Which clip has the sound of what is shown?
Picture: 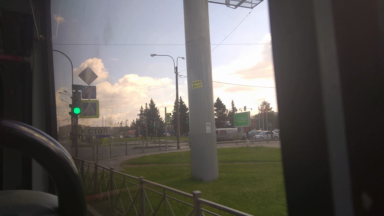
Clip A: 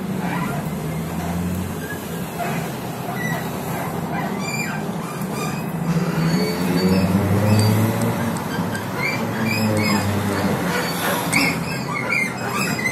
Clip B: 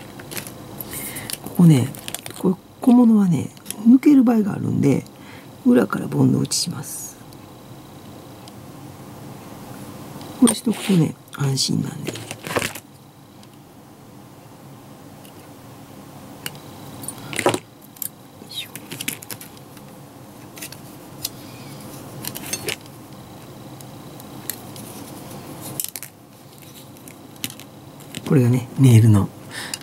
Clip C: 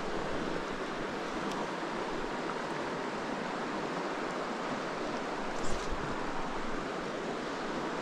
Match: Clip A